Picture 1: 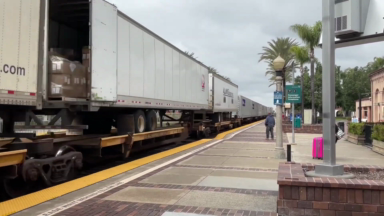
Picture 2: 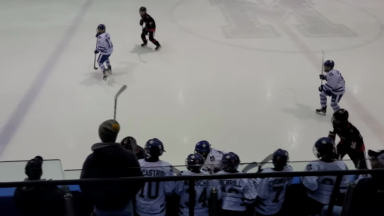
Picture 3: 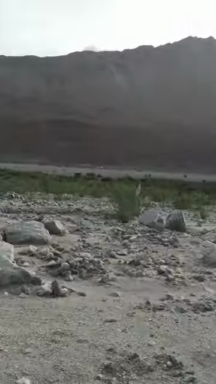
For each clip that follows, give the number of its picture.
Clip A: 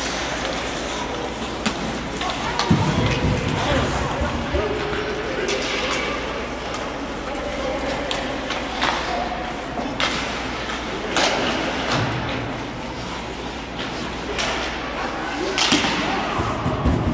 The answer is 2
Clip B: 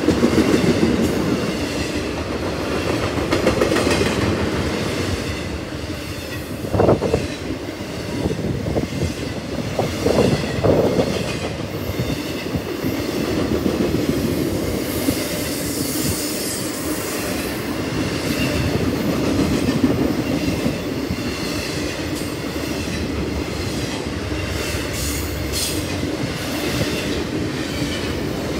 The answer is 1